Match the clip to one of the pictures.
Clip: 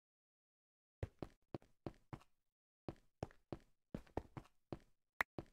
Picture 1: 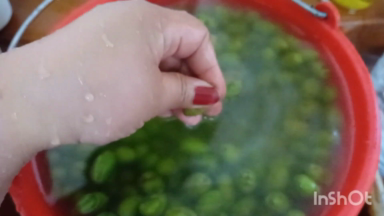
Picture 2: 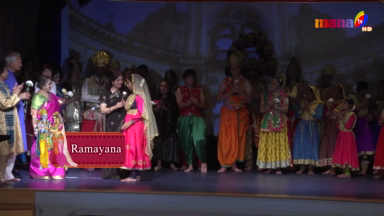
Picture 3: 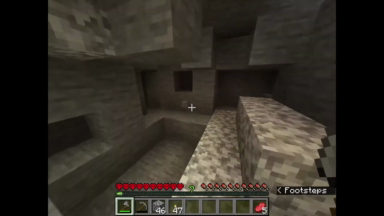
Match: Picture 3